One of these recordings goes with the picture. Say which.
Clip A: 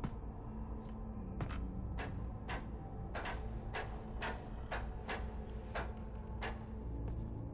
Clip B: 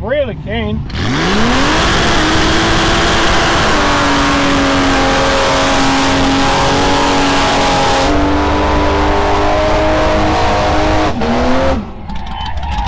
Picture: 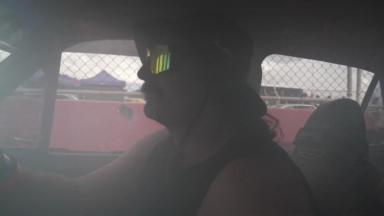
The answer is B